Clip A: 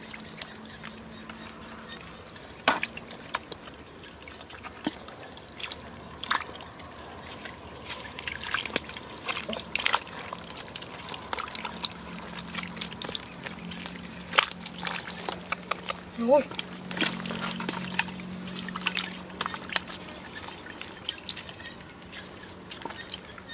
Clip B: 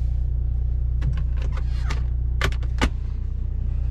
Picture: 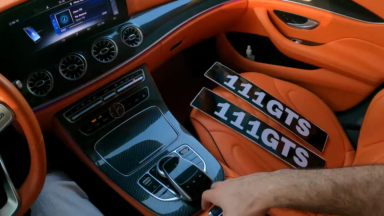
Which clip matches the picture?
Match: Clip B